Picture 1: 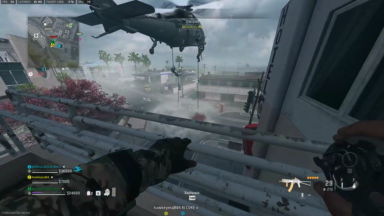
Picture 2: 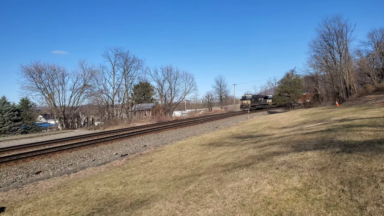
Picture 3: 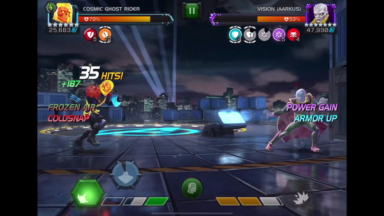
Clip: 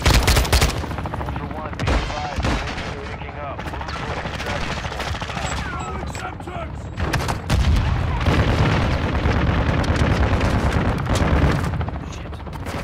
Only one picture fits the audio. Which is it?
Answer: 1